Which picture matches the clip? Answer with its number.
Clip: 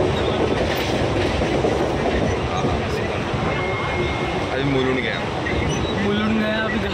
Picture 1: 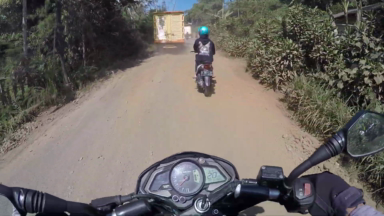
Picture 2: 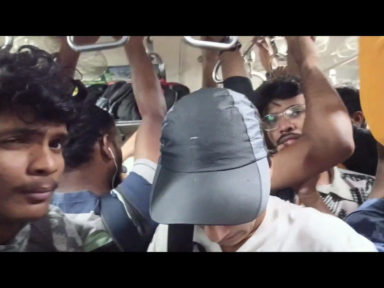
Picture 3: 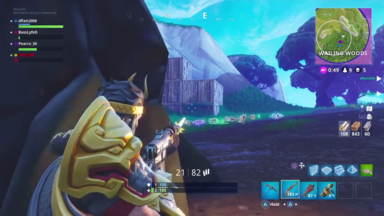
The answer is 2